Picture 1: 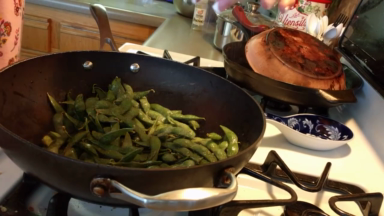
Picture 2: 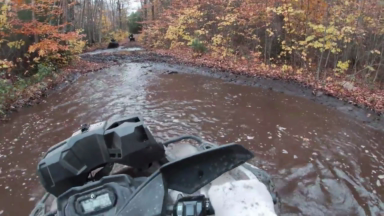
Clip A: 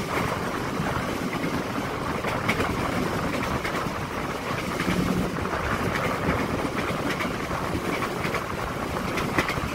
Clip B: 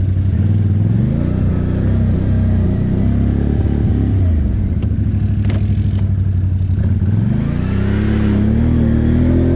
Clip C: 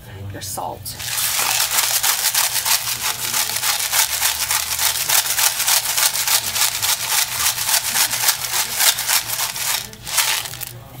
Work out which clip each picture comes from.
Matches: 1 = C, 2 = B